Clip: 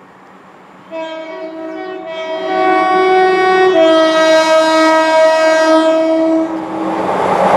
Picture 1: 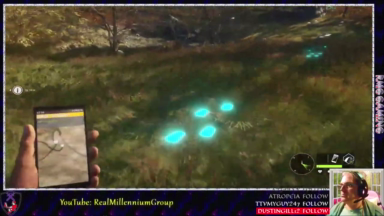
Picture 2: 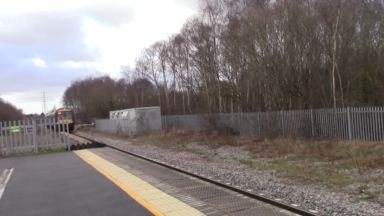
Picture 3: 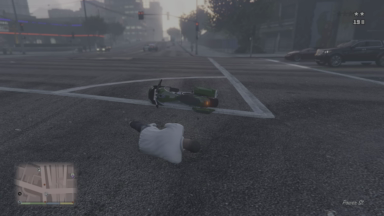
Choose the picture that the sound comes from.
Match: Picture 2